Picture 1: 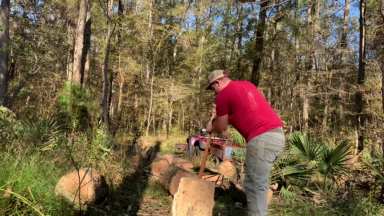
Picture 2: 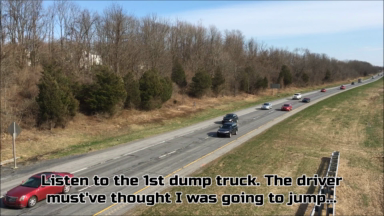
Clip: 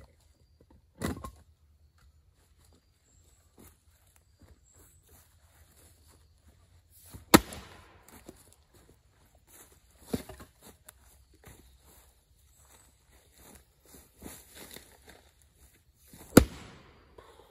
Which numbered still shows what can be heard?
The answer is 1